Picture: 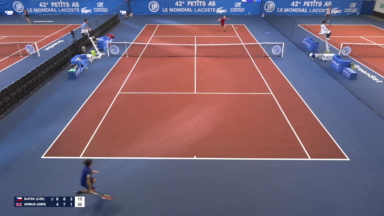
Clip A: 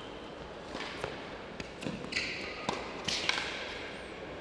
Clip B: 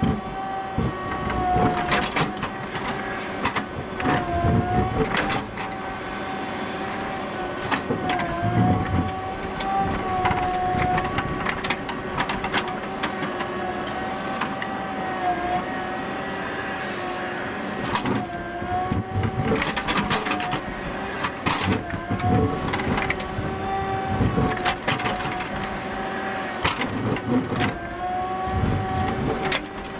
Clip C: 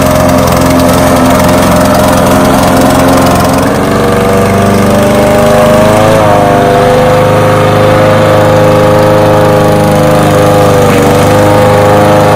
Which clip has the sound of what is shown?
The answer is A